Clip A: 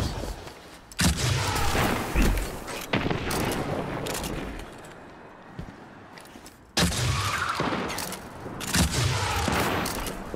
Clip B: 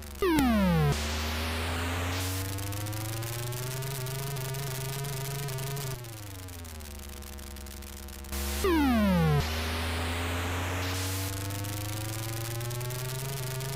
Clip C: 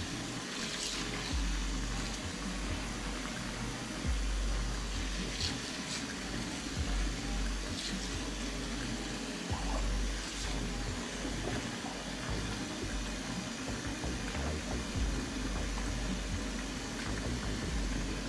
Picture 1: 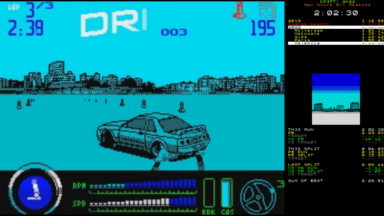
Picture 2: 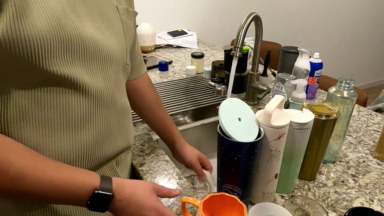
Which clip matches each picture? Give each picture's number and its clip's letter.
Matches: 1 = B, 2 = C